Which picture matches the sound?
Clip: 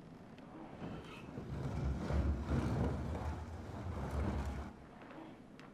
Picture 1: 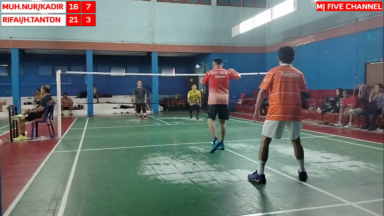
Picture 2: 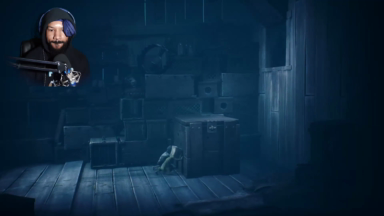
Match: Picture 2